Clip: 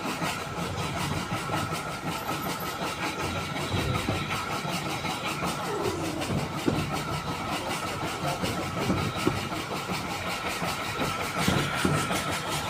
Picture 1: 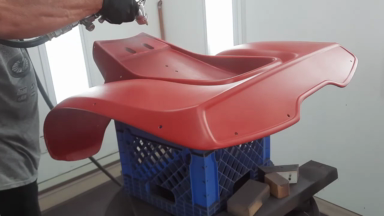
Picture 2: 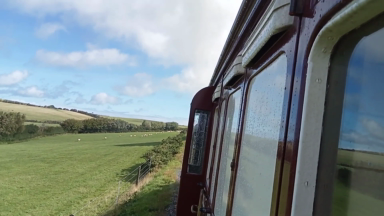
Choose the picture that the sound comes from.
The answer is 2